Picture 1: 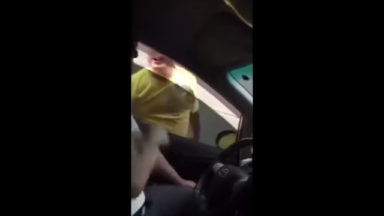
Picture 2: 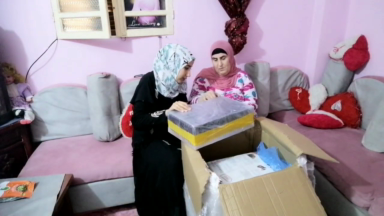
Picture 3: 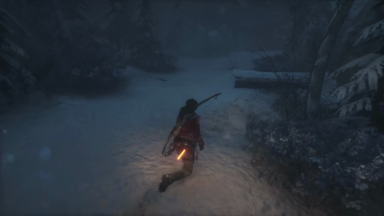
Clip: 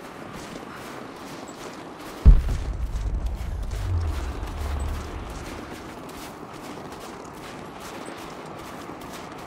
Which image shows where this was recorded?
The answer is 3